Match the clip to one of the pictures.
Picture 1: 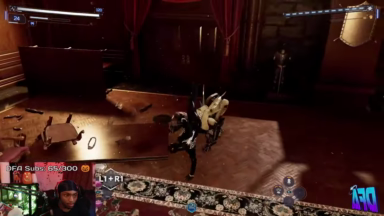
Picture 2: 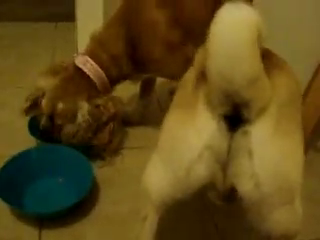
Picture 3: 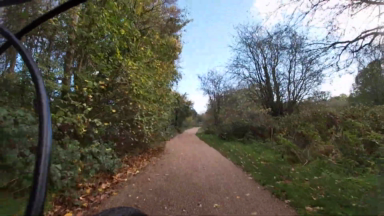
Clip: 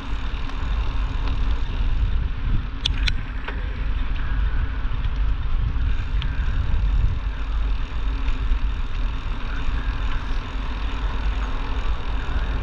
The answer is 3